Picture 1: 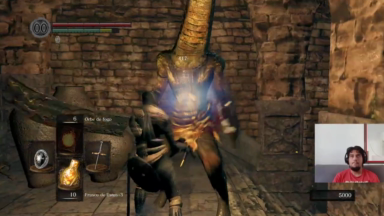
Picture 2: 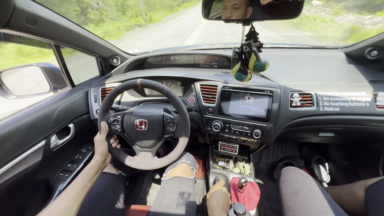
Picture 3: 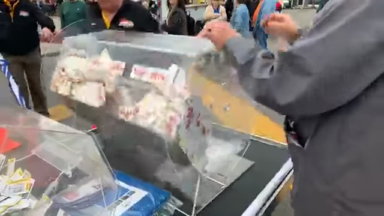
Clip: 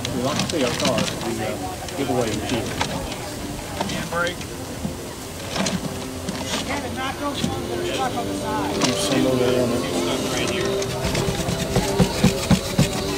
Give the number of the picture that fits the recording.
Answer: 3